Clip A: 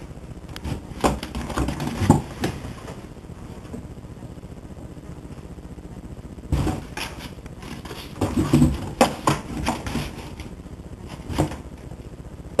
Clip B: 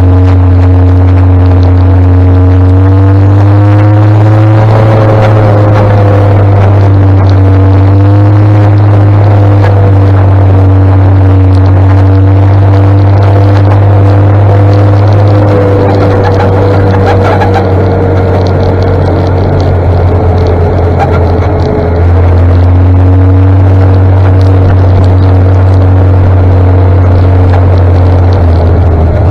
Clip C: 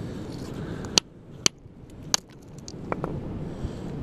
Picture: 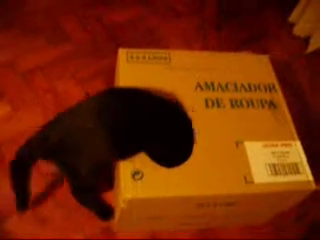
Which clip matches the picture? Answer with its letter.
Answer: A